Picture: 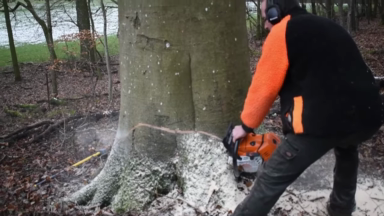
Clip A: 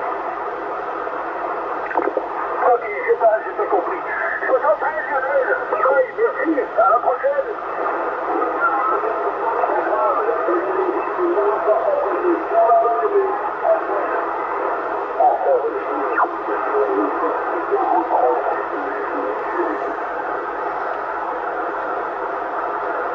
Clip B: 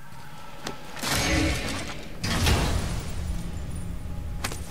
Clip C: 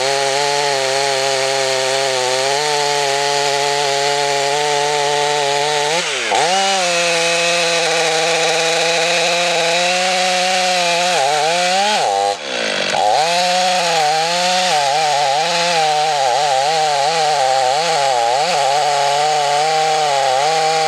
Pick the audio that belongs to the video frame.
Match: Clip C